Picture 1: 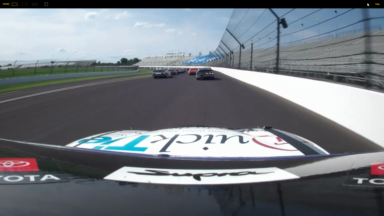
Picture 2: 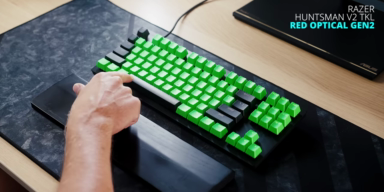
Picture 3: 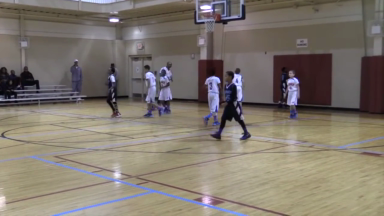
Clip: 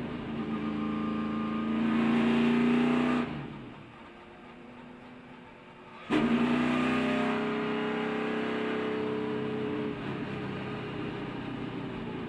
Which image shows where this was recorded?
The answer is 1